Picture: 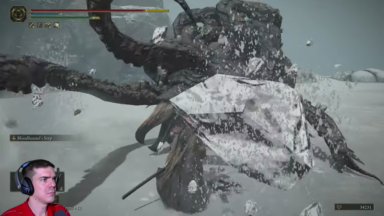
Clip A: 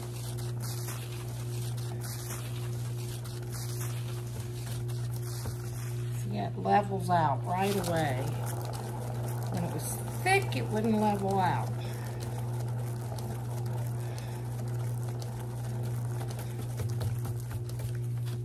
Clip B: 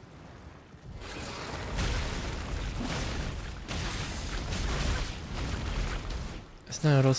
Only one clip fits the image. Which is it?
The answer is B